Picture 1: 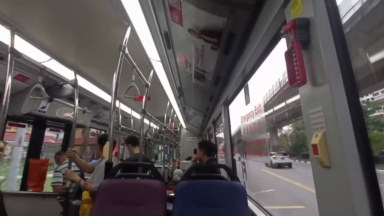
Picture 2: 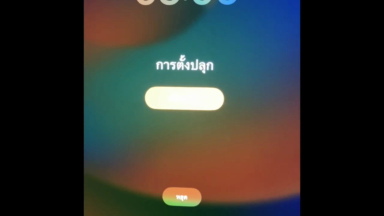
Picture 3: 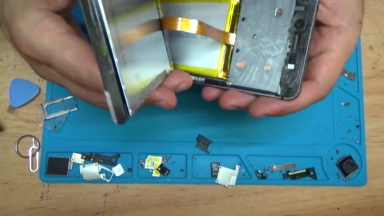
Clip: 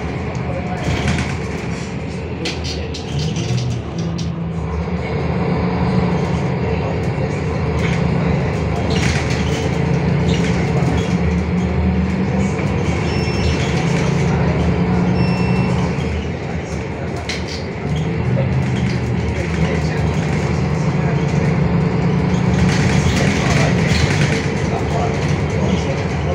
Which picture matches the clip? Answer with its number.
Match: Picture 1